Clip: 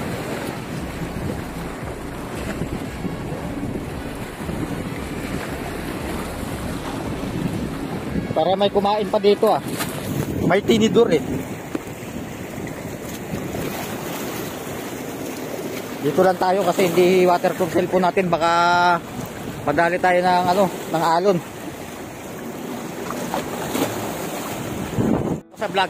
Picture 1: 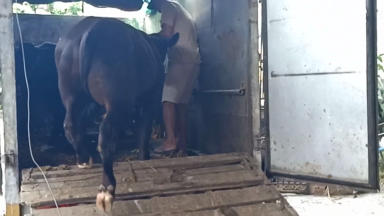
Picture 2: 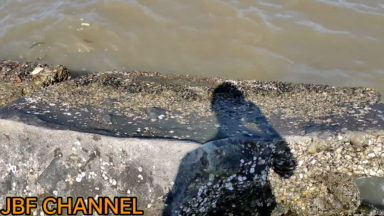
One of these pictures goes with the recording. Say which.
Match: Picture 2